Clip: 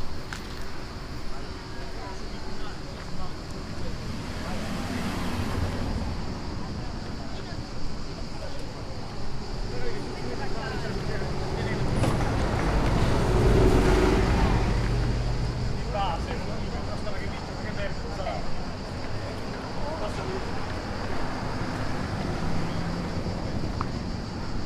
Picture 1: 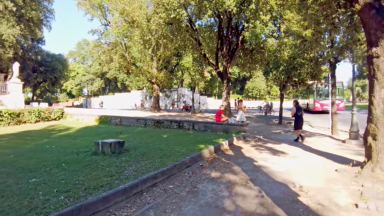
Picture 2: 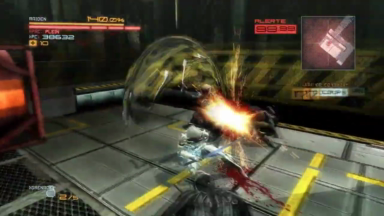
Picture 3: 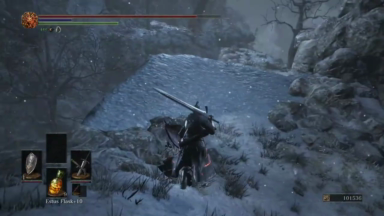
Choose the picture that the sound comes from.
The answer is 1